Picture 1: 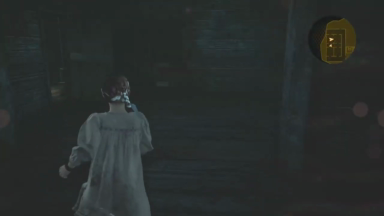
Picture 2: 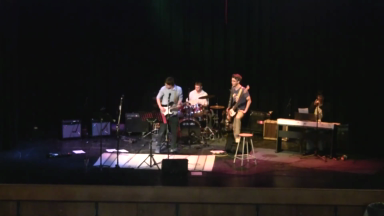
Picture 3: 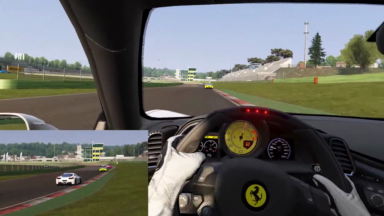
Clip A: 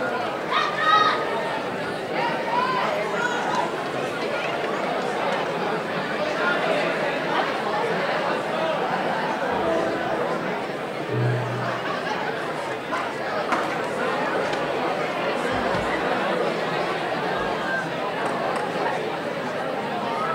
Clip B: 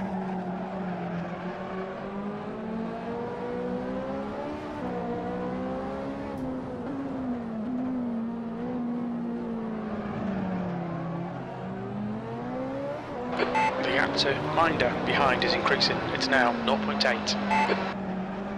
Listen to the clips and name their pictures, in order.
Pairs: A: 2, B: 3